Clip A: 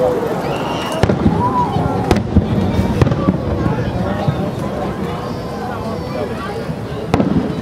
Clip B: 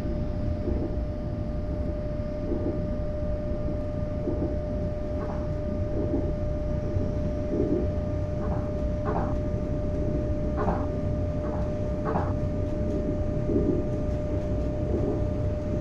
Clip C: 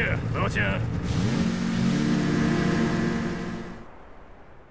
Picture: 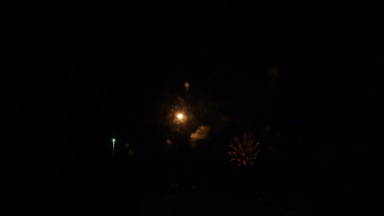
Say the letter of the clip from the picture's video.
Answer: A